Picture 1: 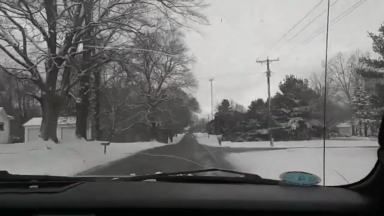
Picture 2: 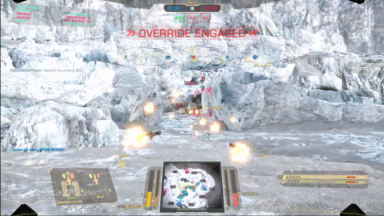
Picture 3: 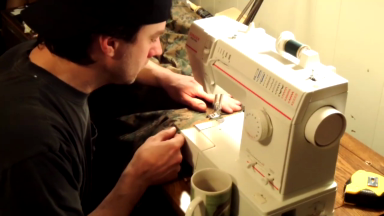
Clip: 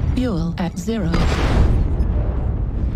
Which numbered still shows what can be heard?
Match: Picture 2